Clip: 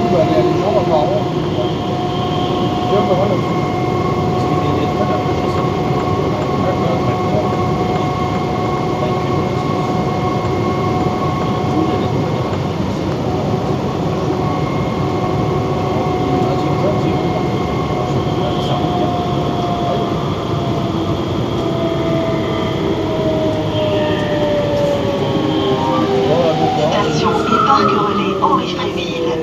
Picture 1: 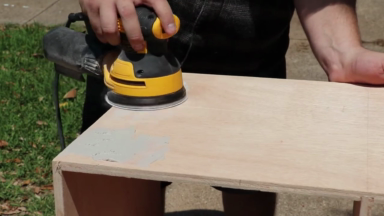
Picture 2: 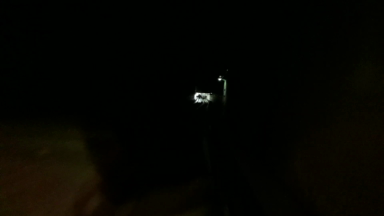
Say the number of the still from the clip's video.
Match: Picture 2